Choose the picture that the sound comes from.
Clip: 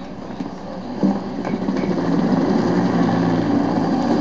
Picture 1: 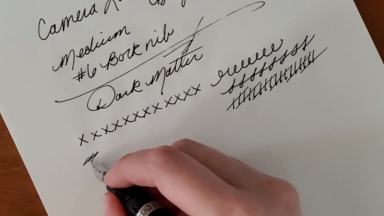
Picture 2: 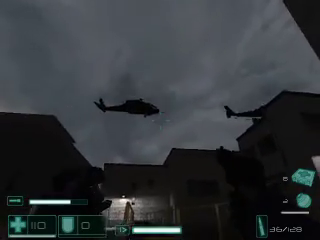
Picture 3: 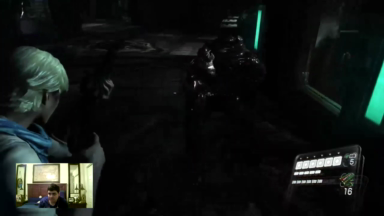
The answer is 2